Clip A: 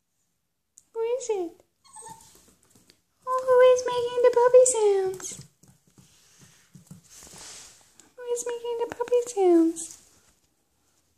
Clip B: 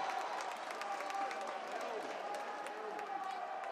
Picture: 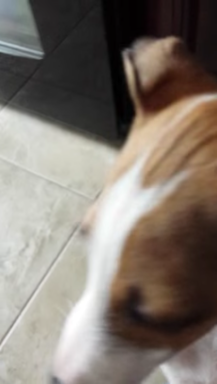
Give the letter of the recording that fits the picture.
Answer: A